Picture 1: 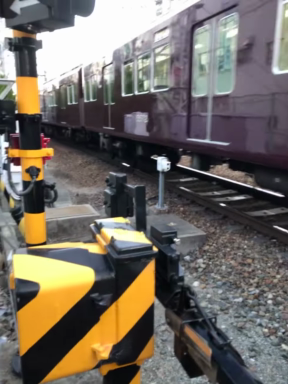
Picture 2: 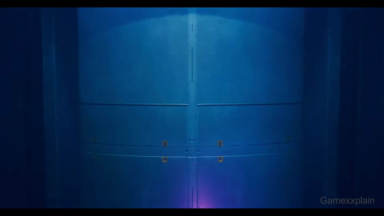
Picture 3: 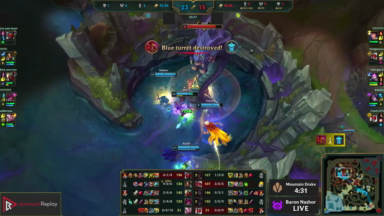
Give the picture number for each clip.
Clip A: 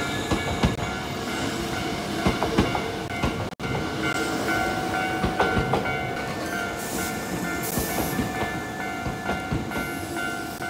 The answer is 1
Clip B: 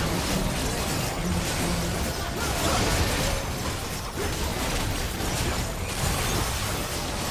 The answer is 3